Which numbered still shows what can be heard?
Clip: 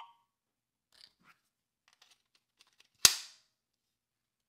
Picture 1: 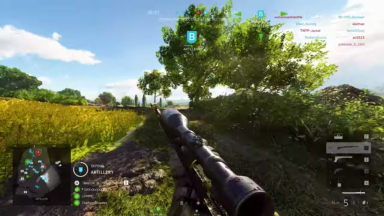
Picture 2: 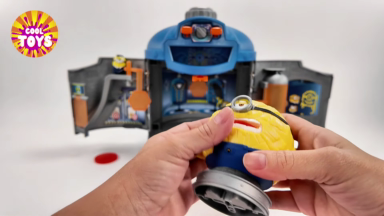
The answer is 2